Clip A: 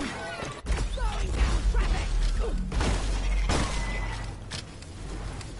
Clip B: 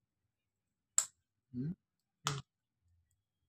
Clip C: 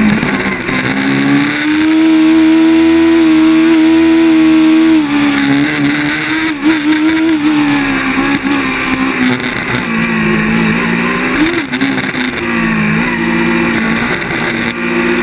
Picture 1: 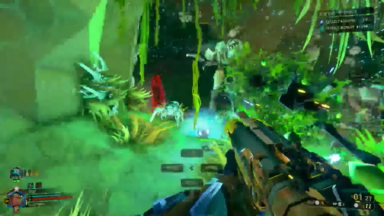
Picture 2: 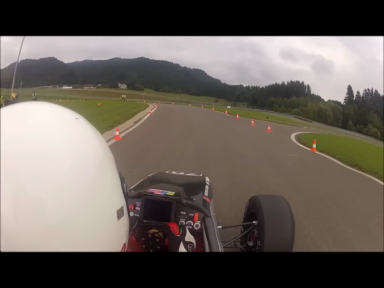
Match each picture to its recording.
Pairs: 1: A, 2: C